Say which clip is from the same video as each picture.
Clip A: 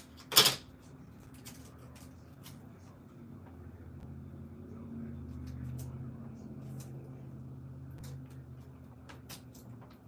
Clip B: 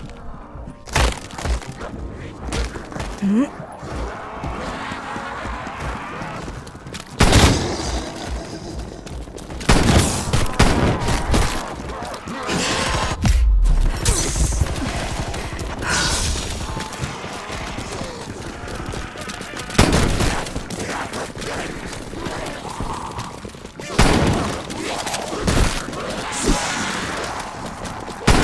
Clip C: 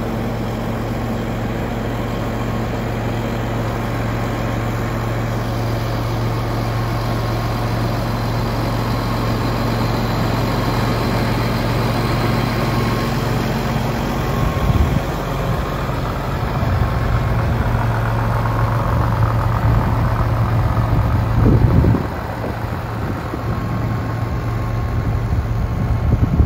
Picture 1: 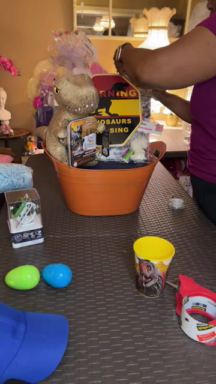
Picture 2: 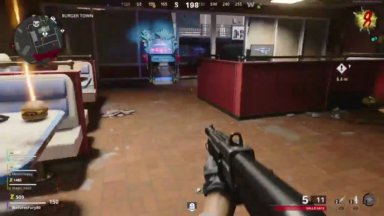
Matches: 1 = A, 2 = B